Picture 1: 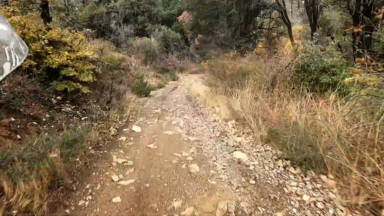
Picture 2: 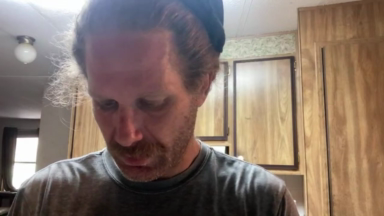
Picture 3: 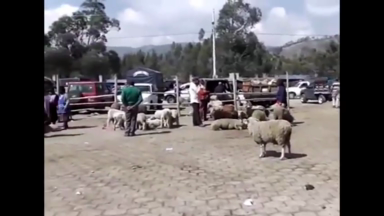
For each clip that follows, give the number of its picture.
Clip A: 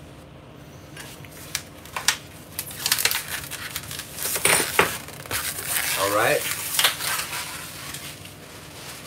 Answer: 2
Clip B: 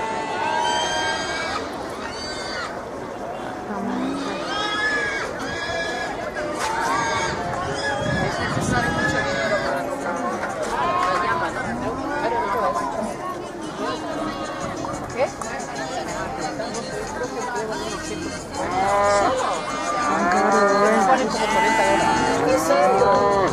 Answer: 3